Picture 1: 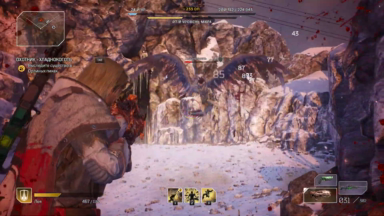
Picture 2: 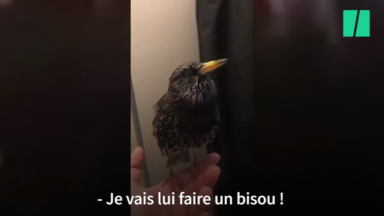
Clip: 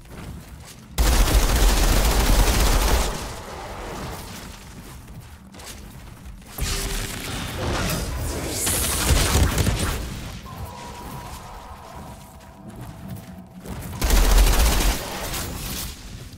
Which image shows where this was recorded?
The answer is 1